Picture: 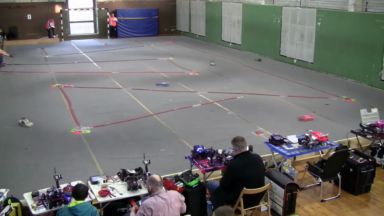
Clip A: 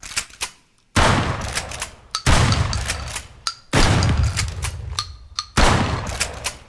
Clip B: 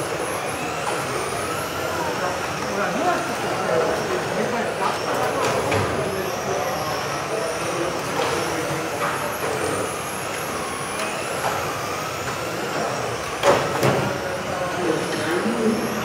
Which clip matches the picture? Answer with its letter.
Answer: B